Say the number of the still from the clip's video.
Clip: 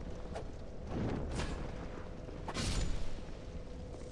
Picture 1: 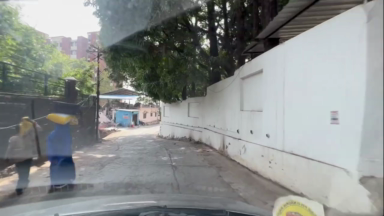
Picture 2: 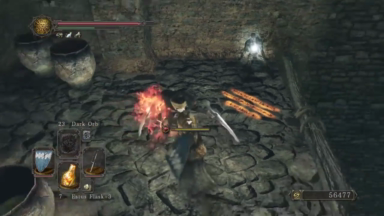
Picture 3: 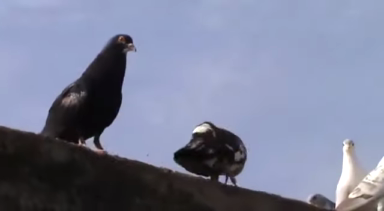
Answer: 2